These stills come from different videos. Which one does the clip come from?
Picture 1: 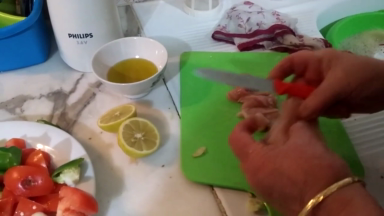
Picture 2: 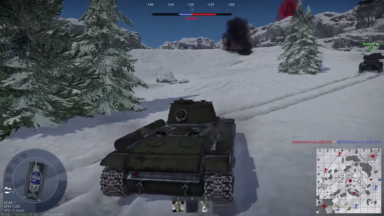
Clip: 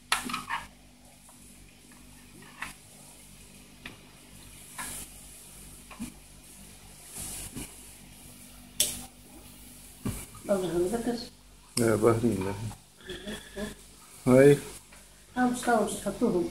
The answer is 1